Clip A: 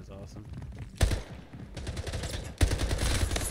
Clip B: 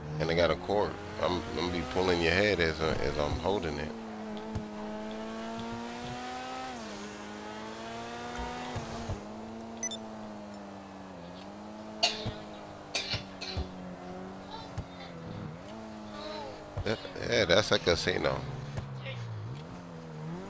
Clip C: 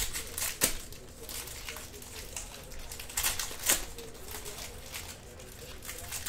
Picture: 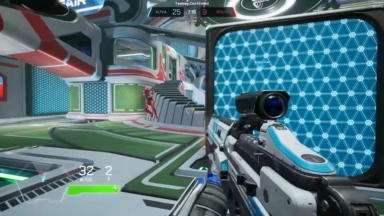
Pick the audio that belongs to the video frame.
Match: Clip A